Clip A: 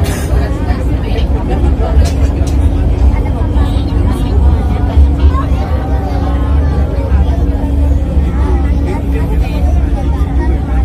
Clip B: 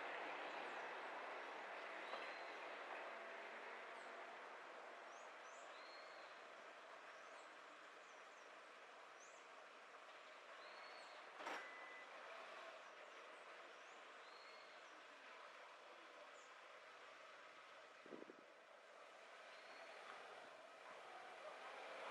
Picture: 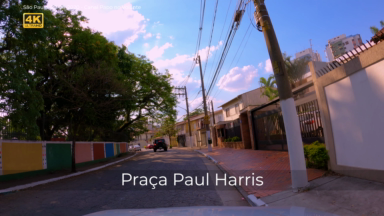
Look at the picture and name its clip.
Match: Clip B